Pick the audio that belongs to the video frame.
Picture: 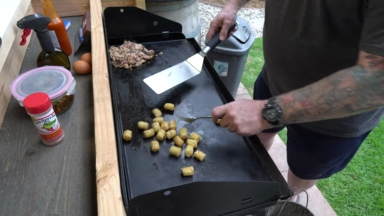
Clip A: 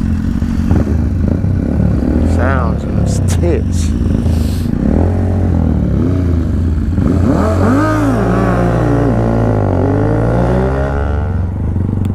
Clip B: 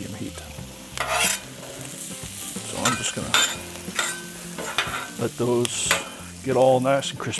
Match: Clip B